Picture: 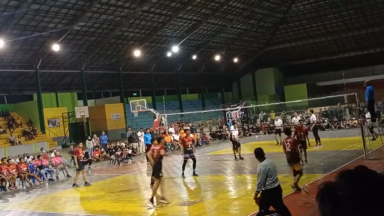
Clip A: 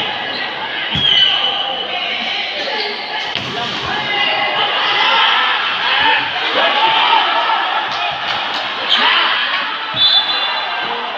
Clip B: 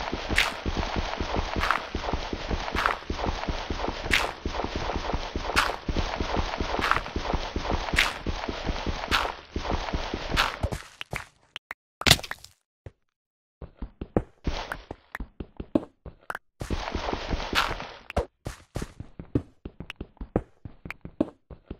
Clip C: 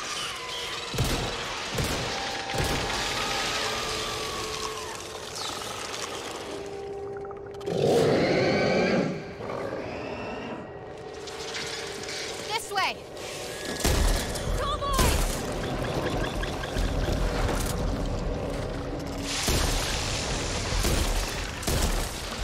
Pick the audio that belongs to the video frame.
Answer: A